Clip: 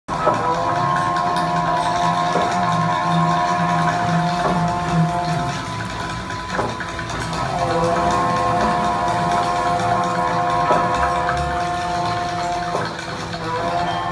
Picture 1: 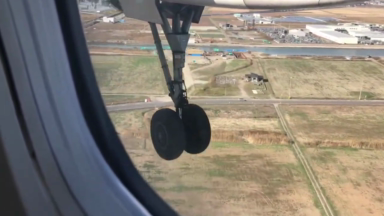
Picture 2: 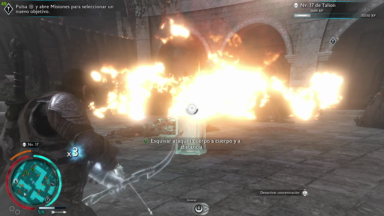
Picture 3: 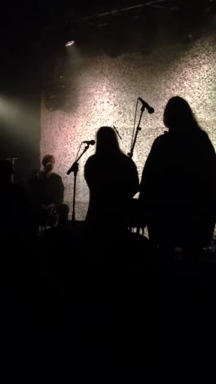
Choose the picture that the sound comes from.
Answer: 3